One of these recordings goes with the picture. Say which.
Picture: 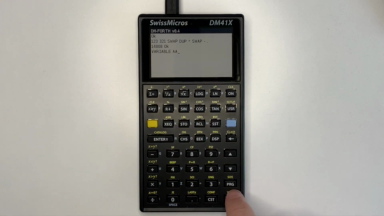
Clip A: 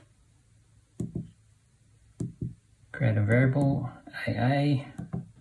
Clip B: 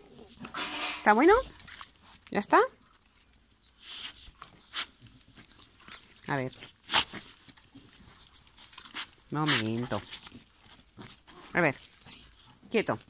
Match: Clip A